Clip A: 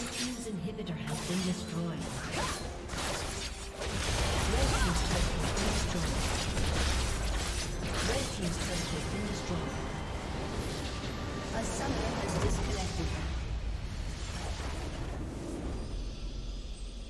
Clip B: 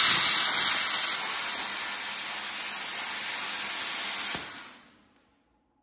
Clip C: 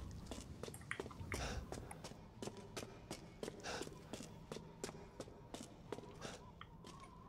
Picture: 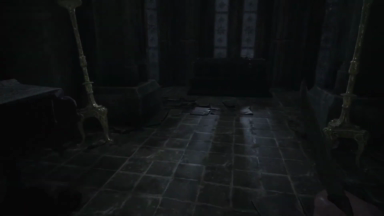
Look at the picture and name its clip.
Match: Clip C